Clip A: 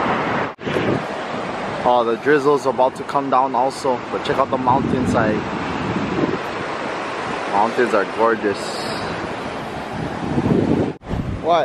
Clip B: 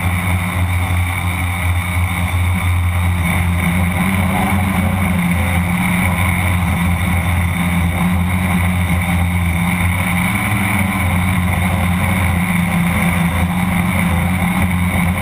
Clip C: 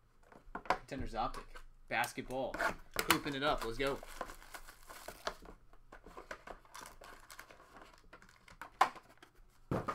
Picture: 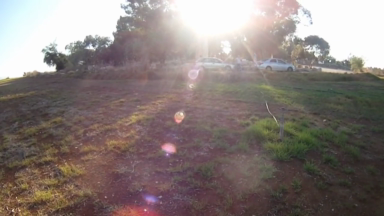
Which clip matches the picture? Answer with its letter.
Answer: B